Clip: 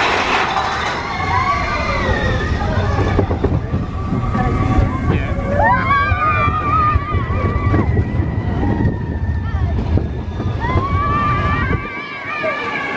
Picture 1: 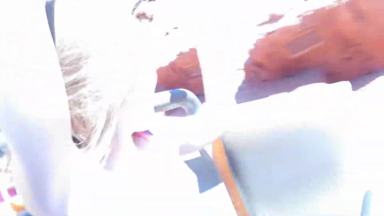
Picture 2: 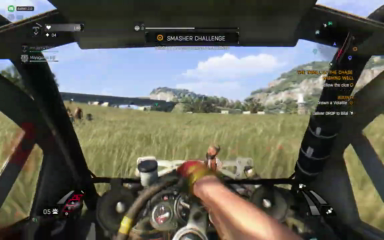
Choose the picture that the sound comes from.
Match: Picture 1